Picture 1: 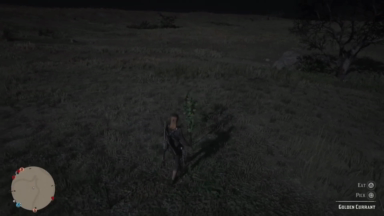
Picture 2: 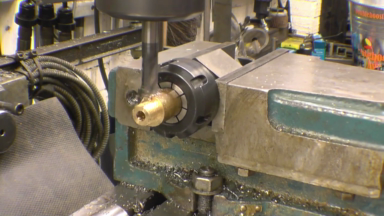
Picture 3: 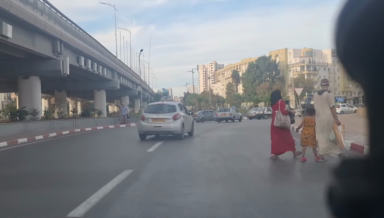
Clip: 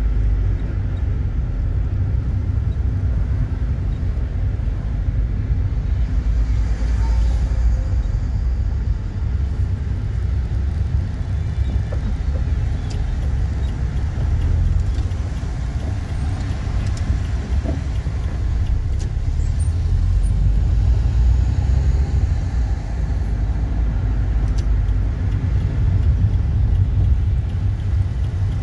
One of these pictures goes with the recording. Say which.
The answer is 3